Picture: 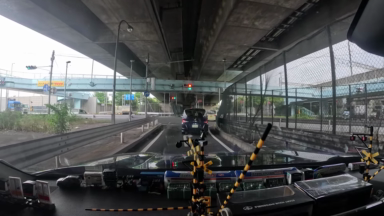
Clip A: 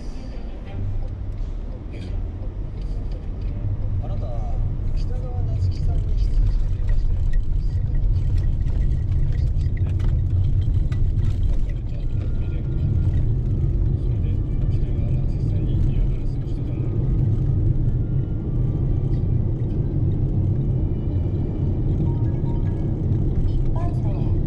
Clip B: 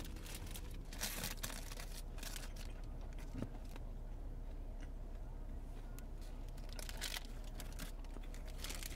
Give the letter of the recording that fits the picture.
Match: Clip A